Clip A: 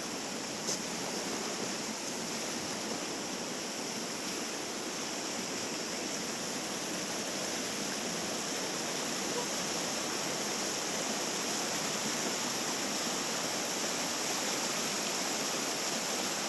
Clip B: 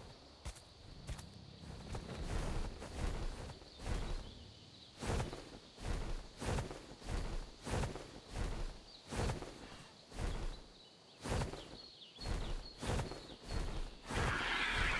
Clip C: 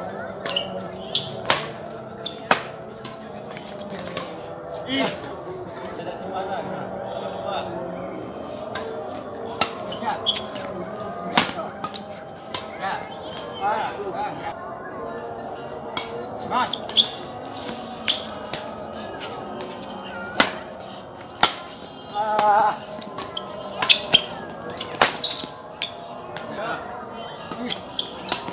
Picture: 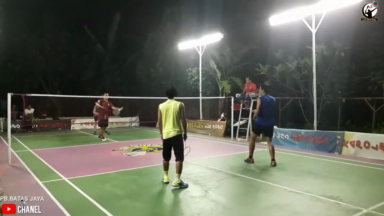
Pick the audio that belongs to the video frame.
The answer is C